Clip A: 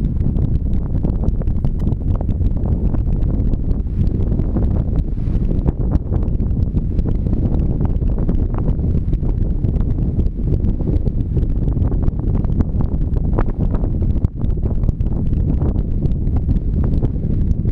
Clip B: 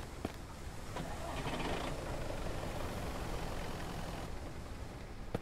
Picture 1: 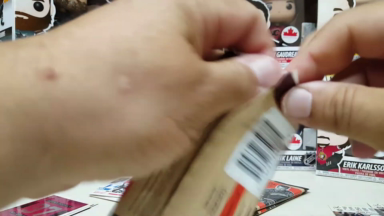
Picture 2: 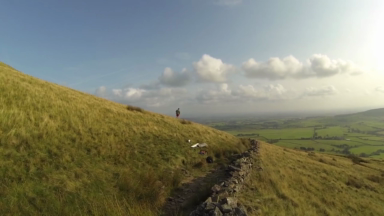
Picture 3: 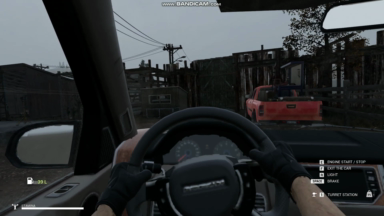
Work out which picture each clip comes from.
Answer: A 2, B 3